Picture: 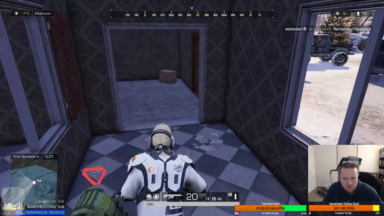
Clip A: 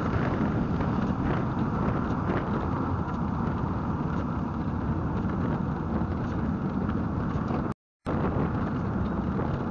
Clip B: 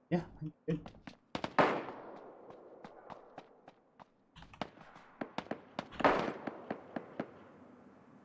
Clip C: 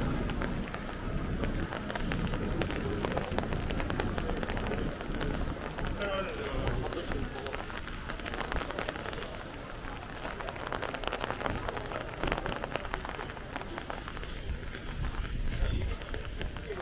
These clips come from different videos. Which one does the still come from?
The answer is B